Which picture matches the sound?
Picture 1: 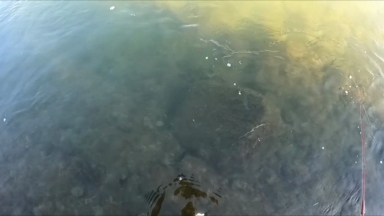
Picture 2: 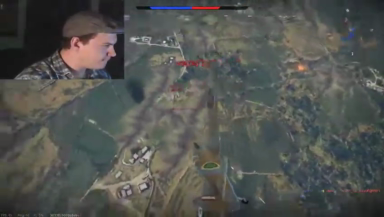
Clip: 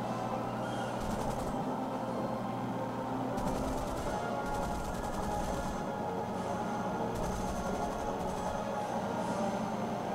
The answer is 2